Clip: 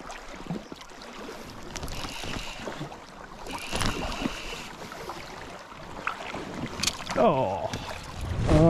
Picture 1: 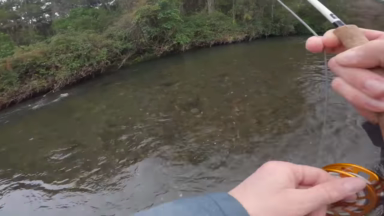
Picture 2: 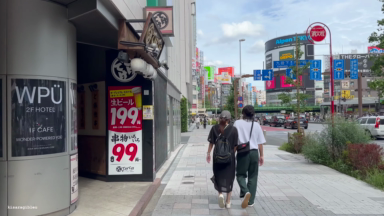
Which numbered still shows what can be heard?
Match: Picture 1